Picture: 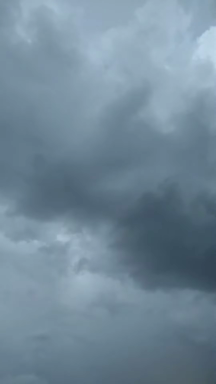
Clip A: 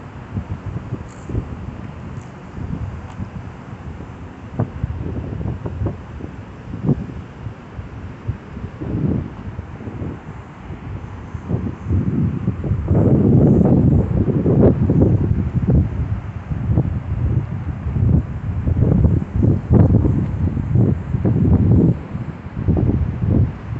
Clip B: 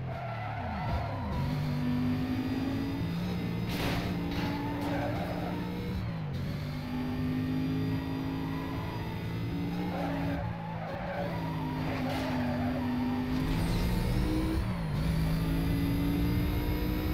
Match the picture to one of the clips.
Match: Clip A